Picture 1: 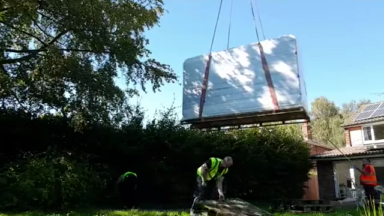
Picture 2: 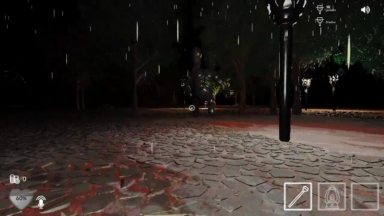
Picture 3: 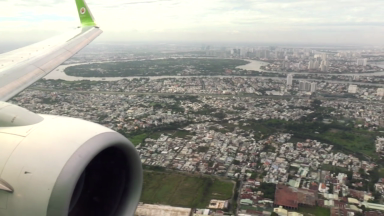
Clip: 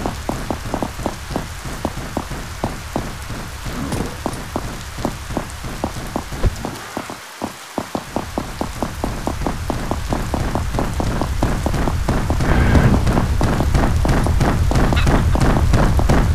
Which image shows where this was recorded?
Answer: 2